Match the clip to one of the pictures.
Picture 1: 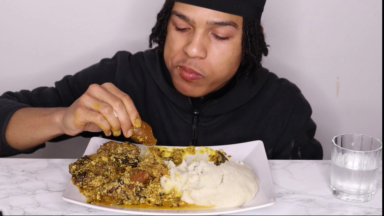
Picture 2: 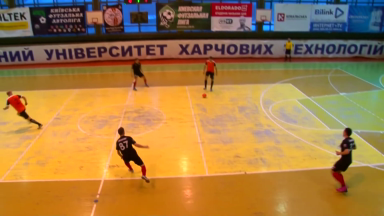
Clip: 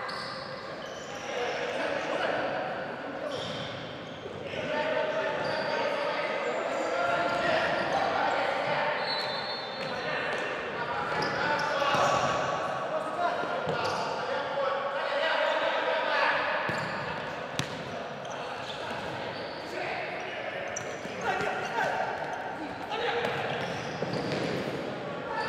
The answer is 2